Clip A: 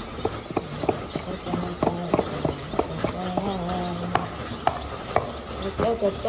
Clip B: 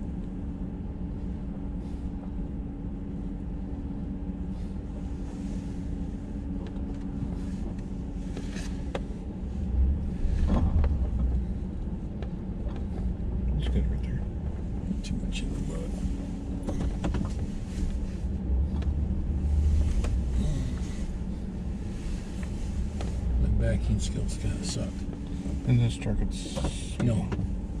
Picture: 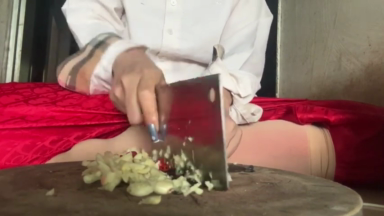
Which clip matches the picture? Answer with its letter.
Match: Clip A